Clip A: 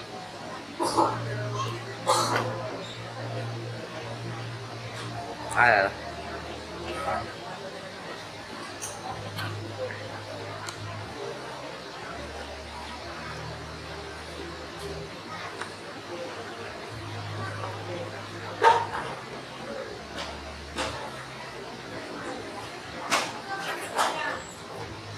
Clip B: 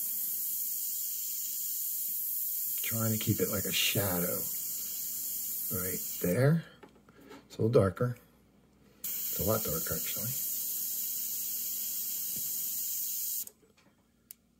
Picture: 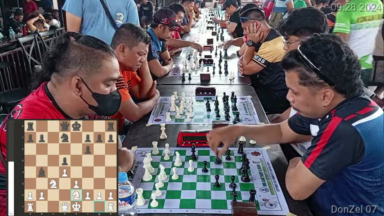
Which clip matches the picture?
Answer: A